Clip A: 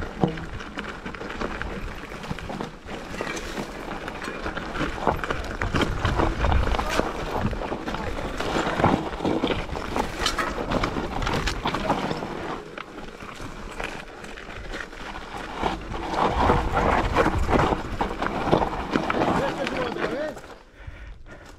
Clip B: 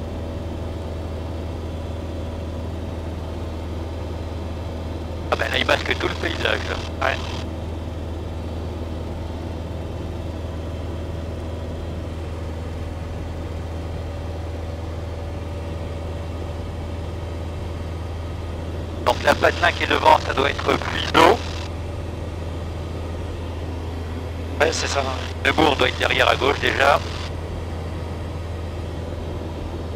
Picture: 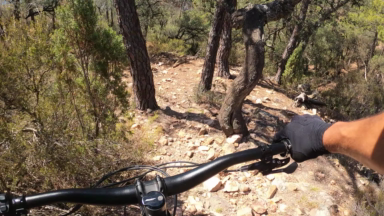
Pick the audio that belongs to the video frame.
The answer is A